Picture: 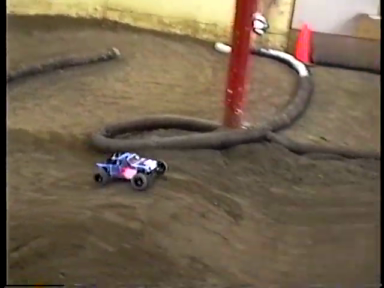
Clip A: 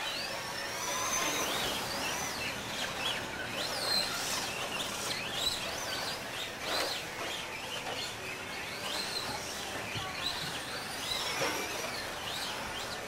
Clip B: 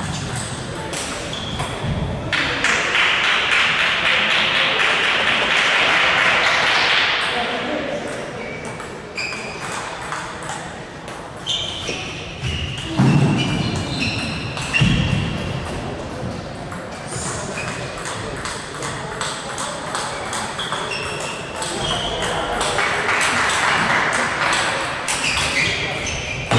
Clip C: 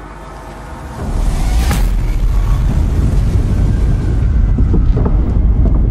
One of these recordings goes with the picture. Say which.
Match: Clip A